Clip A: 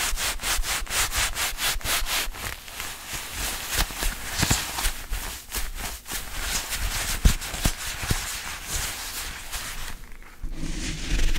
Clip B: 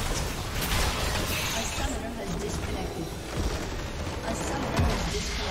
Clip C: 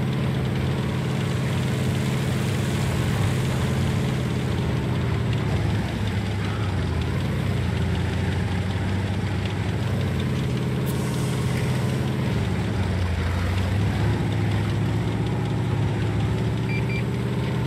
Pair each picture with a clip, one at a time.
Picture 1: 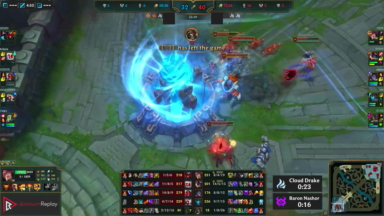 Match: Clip B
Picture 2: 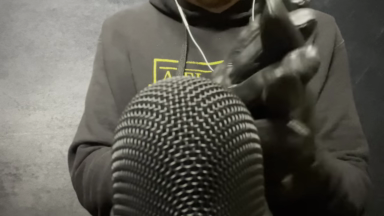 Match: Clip A